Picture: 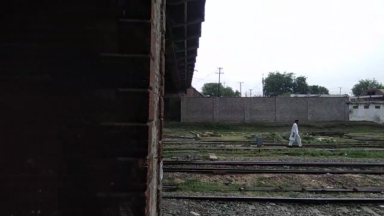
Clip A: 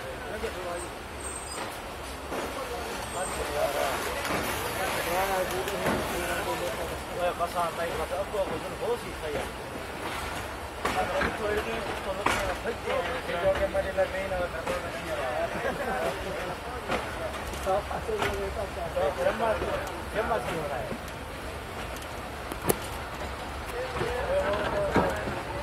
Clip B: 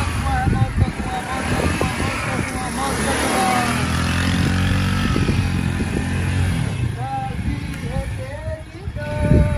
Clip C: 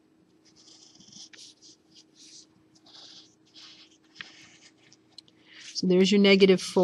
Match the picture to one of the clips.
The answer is A